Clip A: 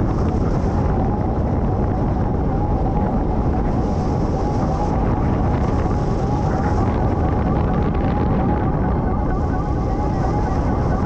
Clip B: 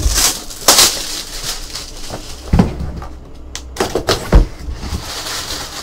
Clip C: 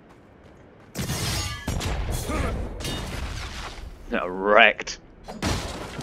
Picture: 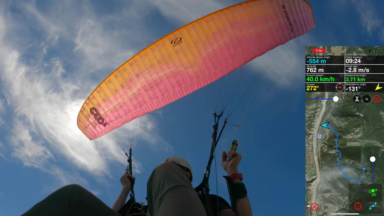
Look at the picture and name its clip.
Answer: A